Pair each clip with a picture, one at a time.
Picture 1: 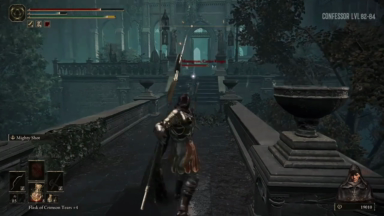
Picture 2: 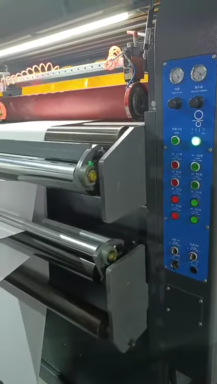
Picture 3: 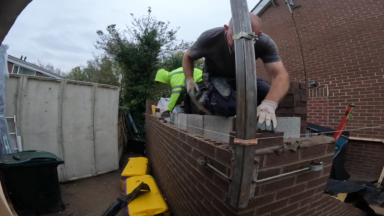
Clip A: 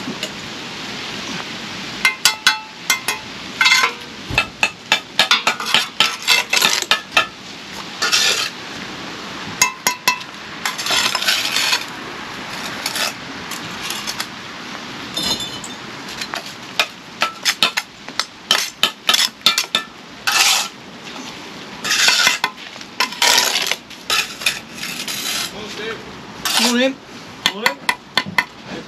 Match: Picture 3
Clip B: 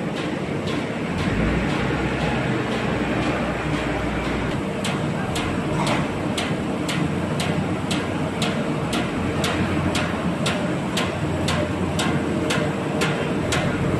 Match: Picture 2